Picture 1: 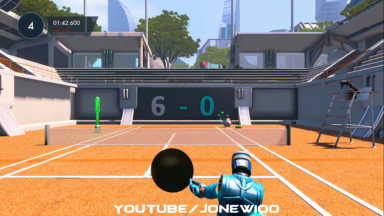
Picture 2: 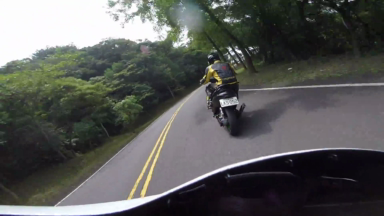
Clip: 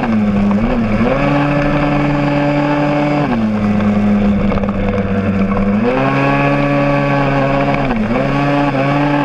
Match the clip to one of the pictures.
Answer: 2